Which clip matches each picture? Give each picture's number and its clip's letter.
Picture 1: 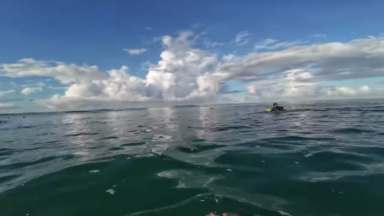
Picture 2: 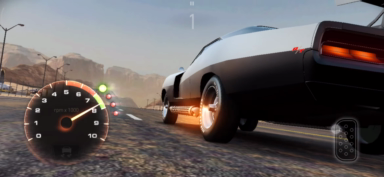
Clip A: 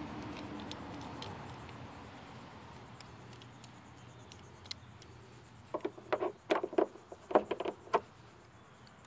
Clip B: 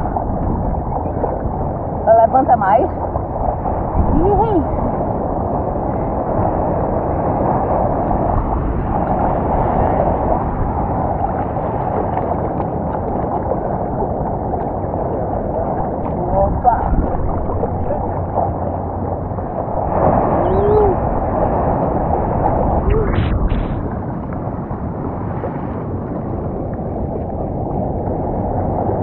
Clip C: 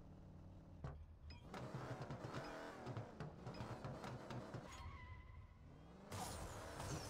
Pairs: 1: B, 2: C